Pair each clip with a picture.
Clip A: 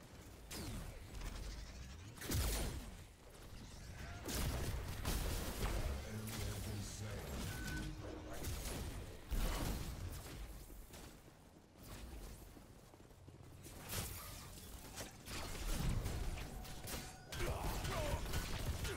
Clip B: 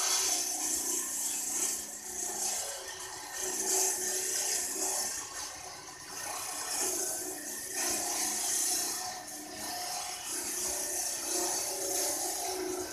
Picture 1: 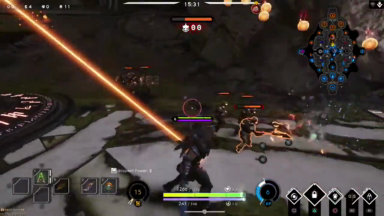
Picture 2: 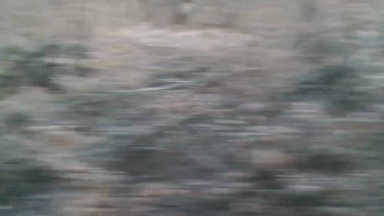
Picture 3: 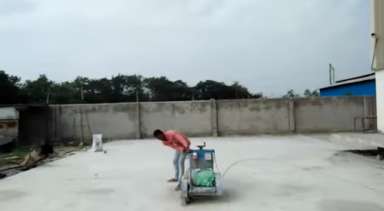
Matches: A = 1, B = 3